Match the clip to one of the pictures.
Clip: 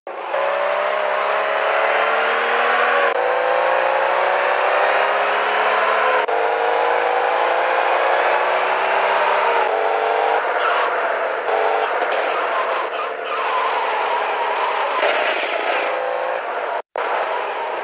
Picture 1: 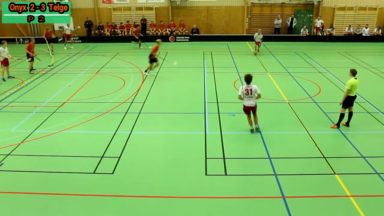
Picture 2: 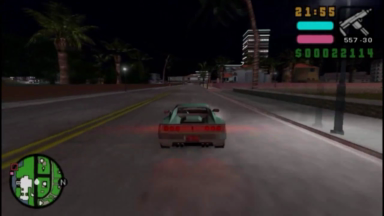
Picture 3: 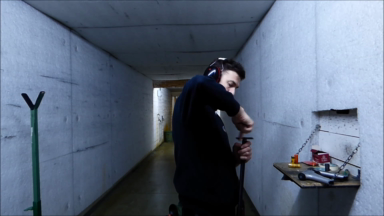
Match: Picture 2